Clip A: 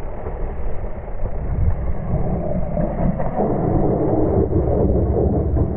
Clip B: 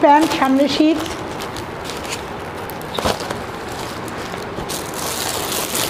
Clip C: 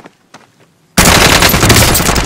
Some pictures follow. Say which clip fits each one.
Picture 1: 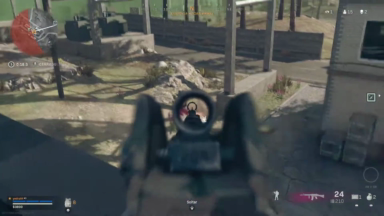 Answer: C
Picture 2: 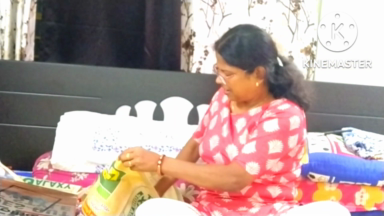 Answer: B